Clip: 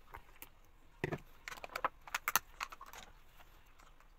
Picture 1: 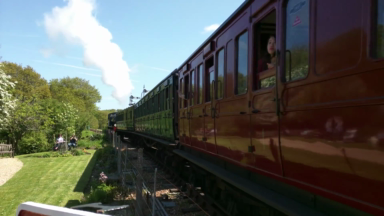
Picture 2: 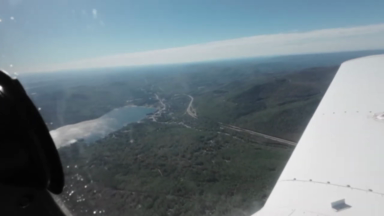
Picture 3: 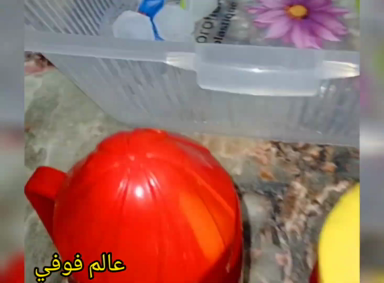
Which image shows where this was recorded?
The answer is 3